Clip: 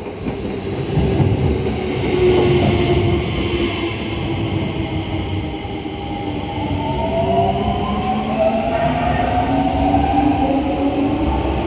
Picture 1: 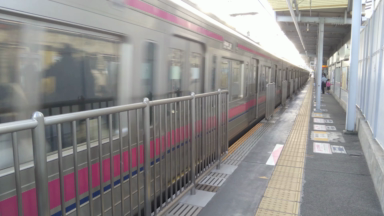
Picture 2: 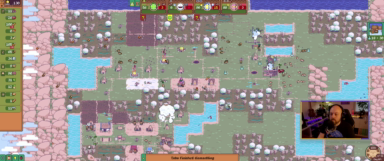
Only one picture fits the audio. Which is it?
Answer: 1